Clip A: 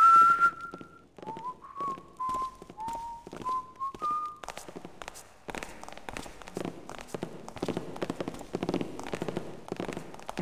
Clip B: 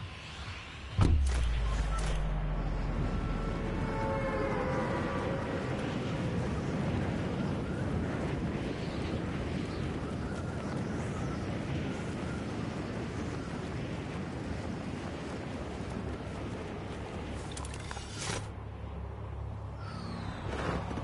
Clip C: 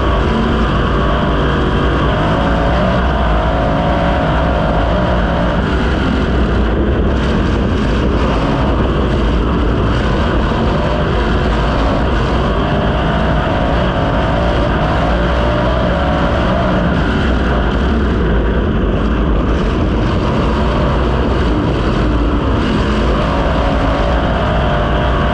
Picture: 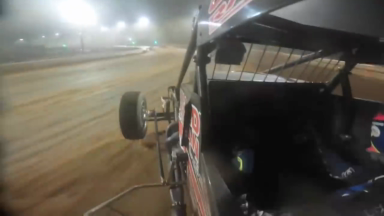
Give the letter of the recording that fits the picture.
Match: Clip C